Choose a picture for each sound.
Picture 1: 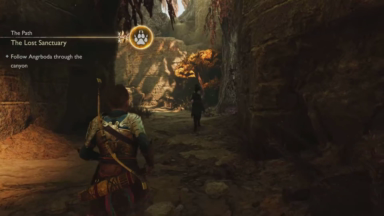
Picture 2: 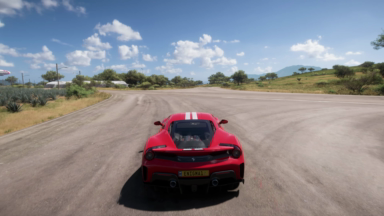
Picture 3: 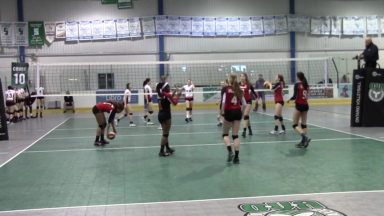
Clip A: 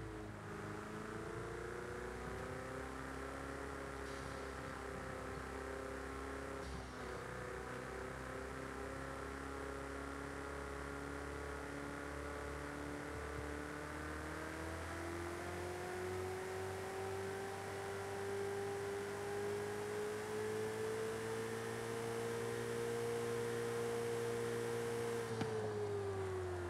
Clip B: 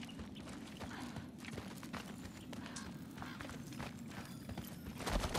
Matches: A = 2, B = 1